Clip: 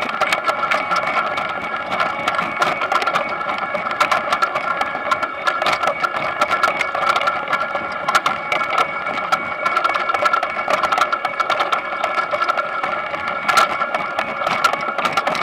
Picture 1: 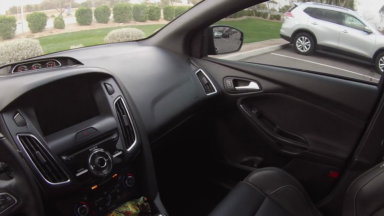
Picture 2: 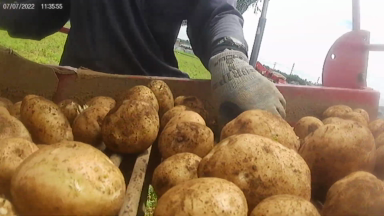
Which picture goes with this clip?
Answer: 2